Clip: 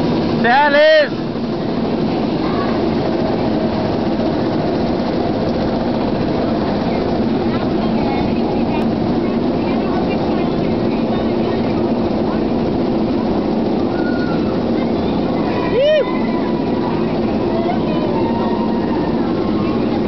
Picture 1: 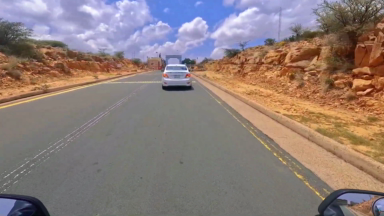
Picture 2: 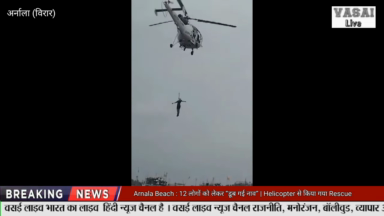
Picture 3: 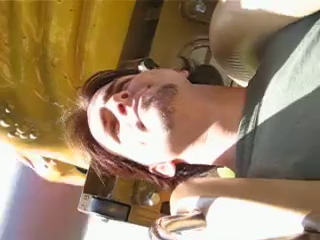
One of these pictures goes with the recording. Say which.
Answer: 3